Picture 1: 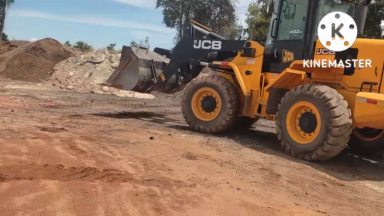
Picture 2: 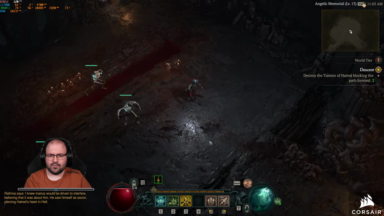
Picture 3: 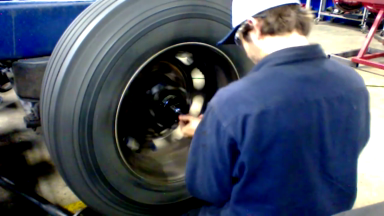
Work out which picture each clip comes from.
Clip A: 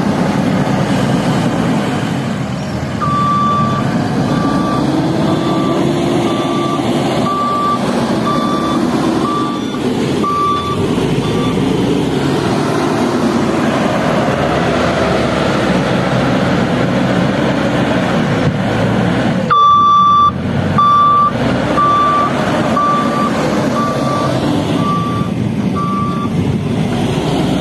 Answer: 1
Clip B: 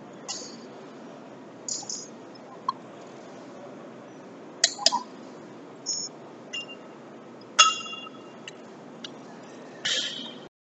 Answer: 3